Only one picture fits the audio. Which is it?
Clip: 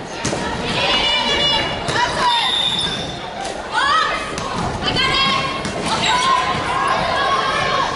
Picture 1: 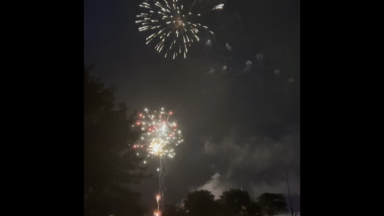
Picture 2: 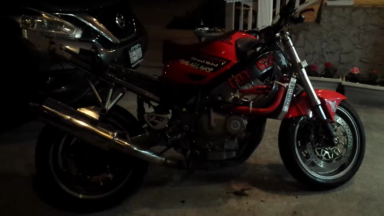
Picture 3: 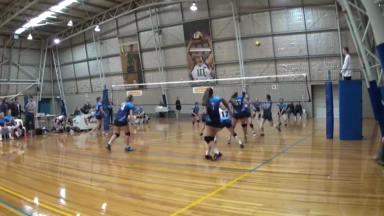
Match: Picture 3